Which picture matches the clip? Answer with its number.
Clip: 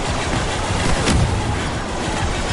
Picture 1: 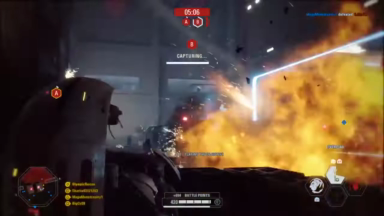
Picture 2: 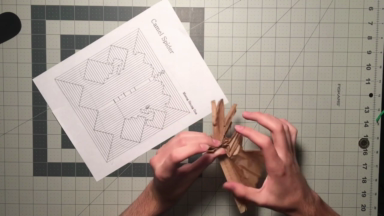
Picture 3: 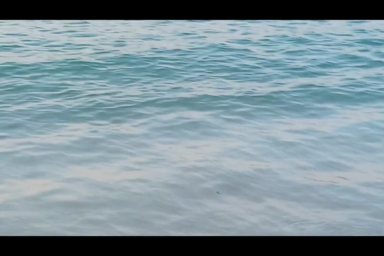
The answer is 1